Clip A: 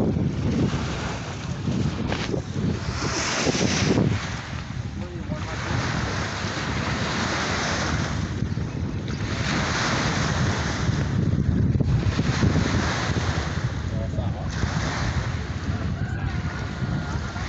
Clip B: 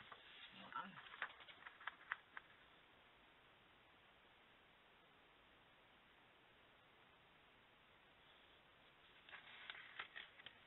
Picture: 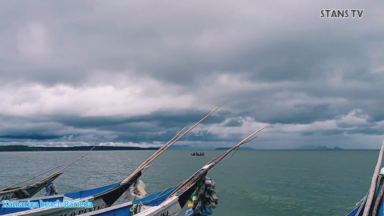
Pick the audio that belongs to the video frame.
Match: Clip A